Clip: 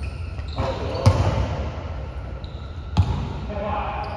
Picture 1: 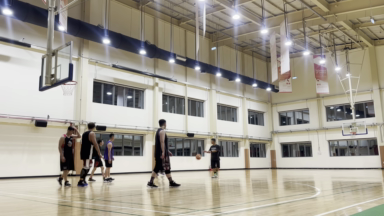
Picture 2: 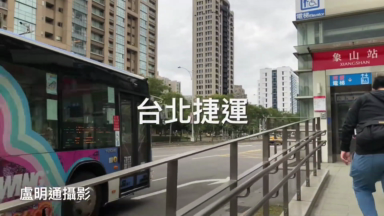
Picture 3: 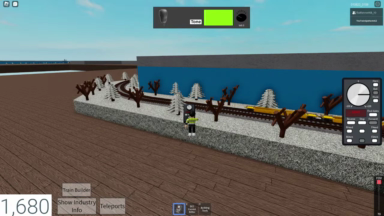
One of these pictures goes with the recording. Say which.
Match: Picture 1